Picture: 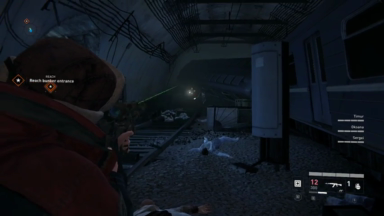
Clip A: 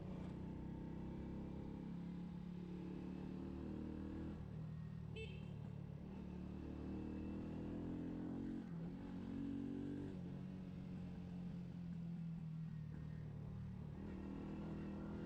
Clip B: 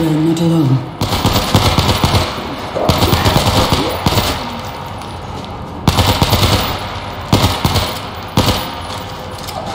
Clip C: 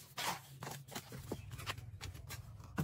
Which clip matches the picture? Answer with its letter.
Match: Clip B